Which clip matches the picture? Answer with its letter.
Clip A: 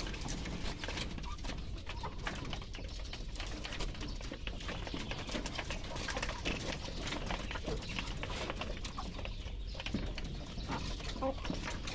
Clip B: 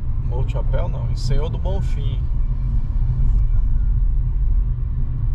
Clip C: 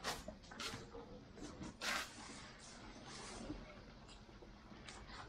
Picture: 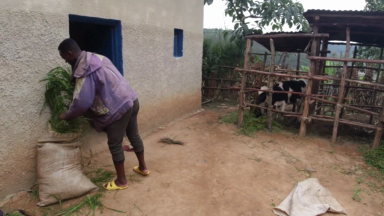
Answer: C